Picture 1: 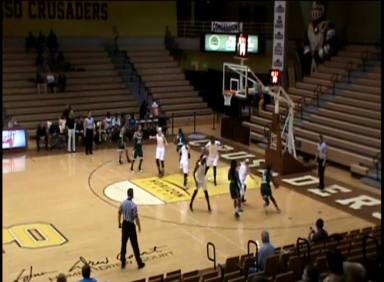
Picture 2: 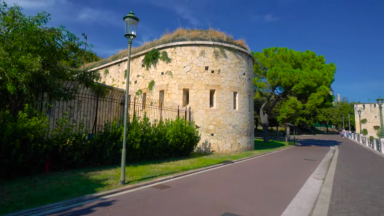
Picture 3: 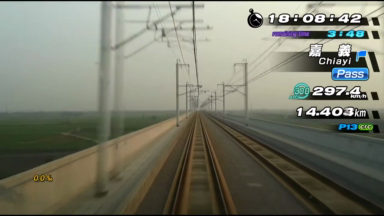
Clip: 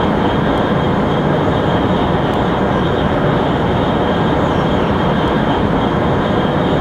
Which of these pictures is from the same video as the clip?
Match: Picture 3